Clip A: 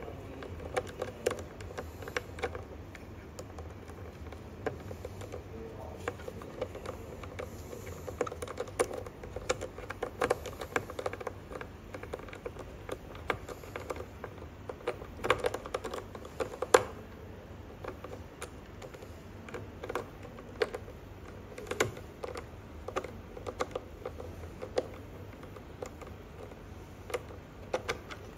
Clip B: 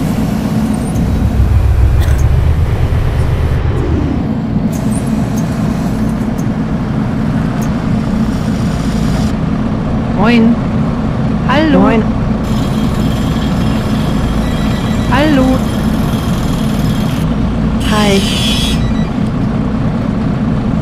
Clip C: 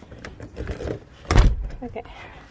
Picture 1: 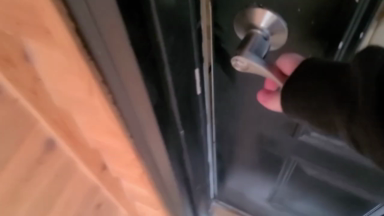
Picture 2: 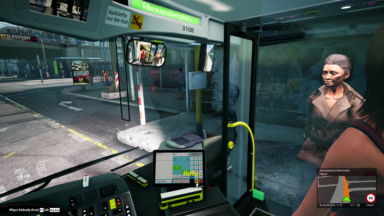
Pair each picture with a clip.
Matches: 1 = C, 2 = B